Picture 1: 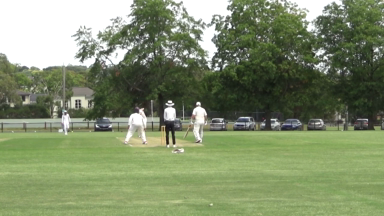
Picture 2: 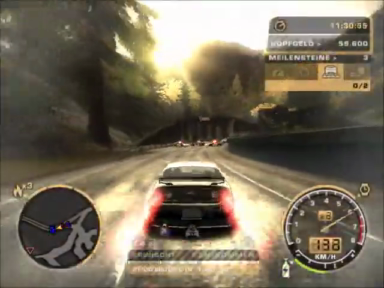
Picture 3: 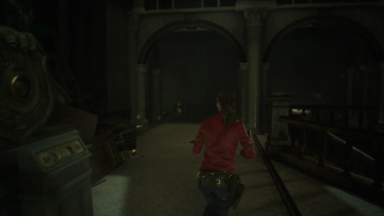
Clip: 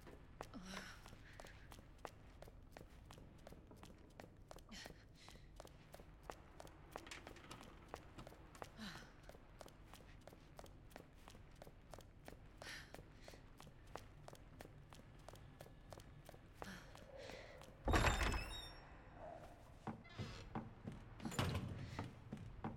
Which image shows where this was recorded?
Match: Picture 3